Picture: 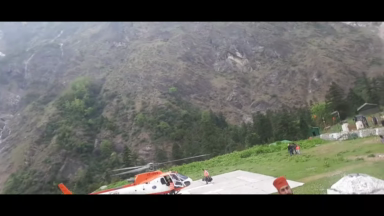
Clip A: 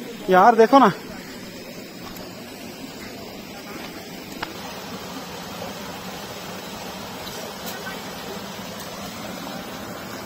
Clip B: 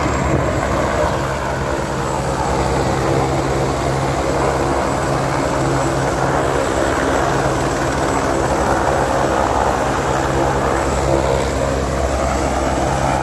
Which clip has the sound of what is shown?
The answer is B